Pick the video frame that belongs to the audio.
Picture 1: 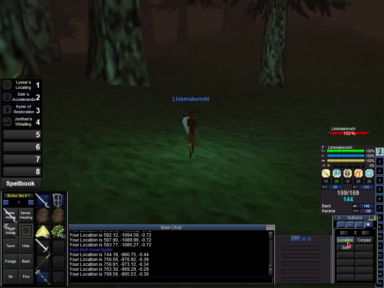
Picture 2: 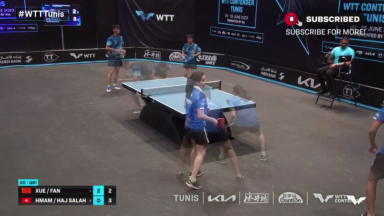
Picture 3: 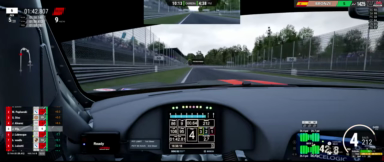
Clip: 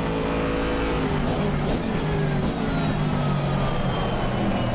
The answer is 3